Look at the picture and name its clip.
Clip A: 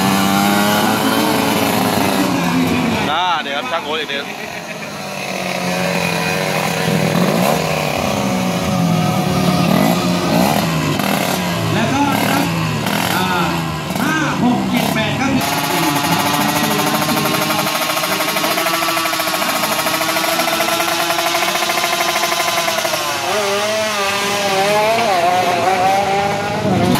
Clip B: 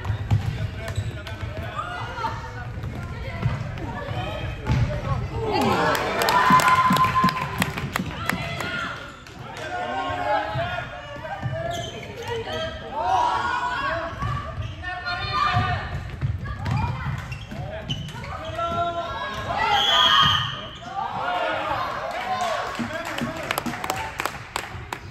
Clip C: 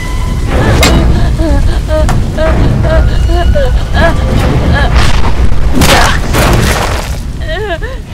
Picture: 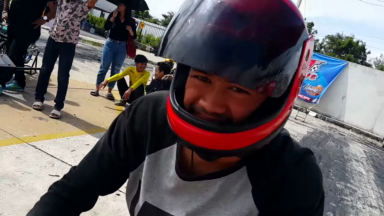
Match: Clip A